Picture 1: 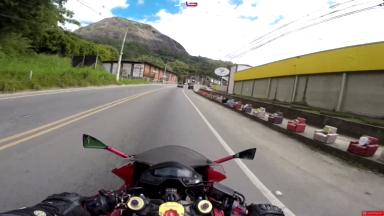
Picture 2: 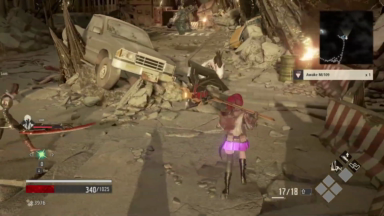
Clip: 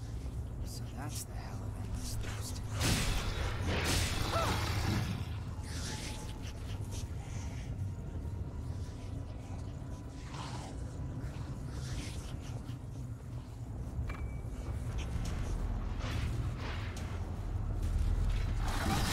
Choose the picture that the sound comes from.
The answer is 2